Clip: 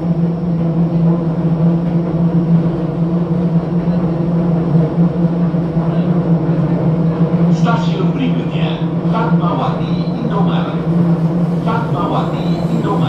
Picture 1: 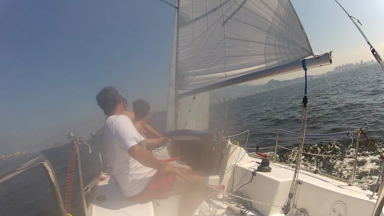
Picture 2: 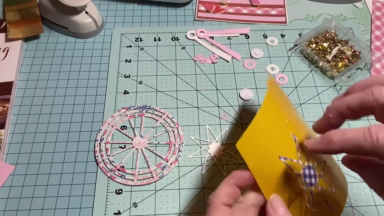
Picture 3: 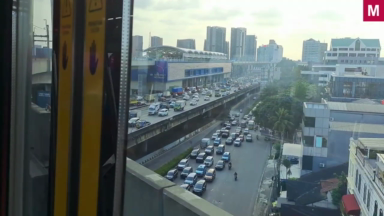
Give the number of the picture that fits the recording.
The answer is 3